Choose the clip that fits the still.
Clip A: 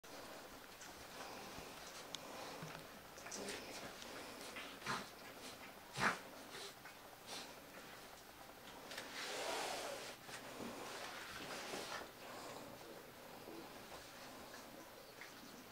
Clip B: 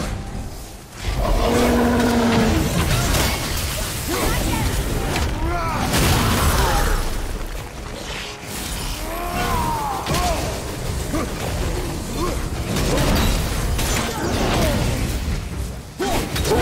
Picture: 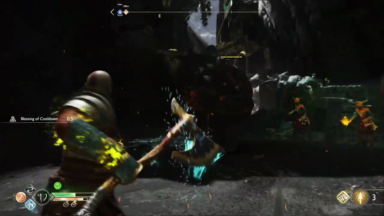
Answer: B